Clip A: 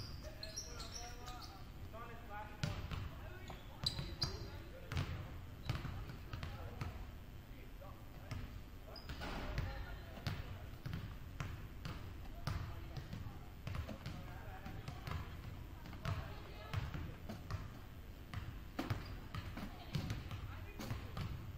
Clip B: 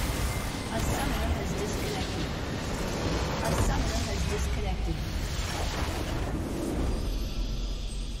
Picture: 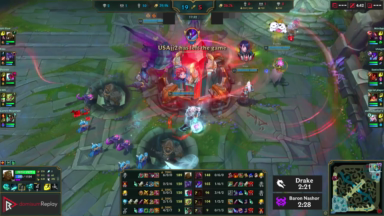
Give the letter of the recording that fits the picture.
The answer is B